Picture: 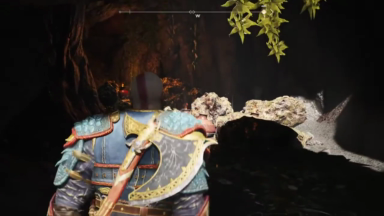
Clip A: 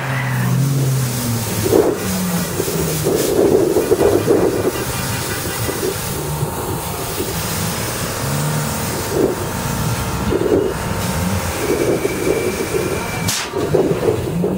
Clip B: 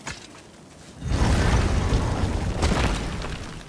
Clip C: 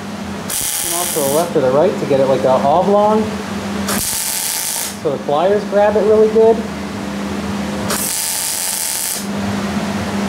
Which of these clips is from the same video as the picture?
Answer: B